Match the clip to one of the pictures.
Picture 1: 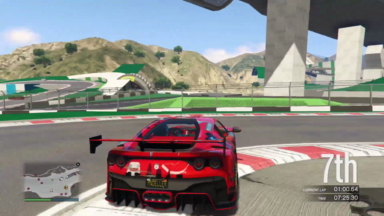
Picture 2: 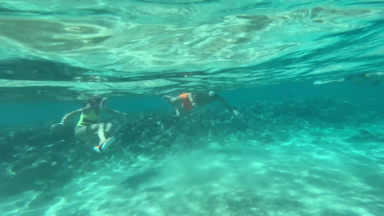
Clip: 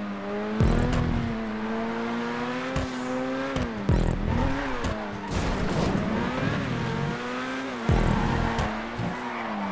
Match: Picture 1